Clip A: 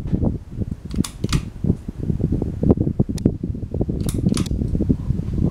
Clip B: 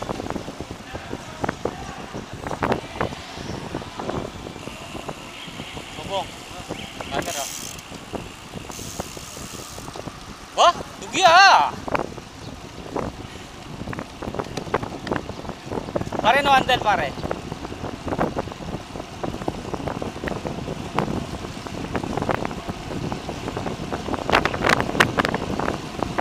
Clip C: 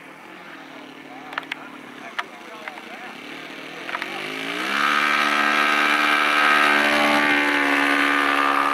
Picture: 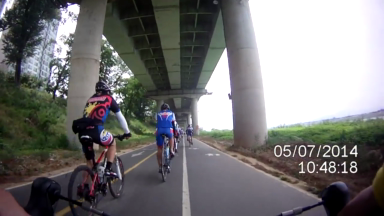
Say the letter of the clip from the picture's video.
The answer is B